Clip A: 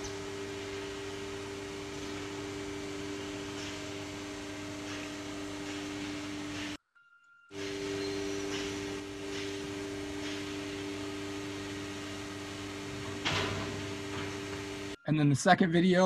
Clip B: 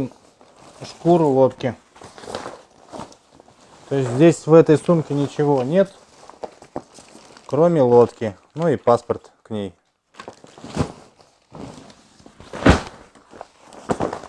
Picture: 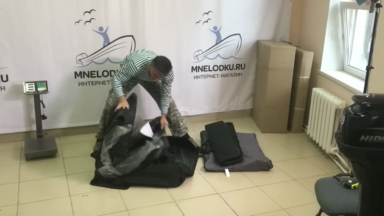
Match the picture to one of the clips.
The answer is B